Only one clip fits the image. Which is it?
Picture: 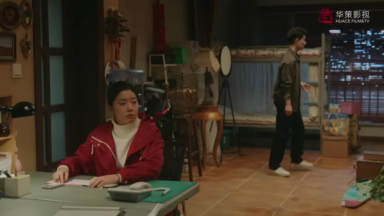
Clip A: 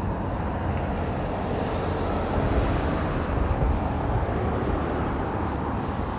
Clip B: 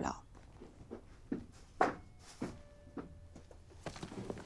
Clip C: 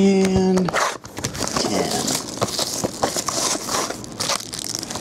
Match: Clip B